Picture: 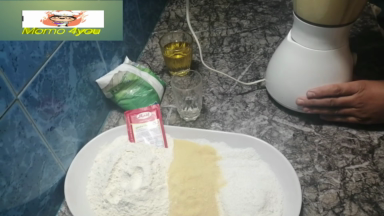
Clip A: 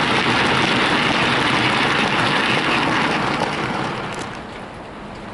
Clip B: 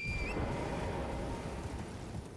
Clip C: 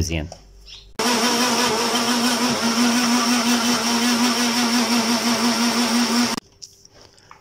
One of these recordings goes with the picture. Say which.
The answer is C